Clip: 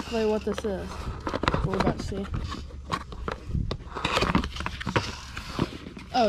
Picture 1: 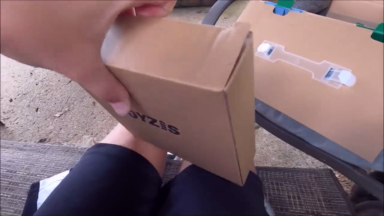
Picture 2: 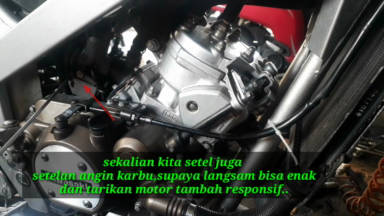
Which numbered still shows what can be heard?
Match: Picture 1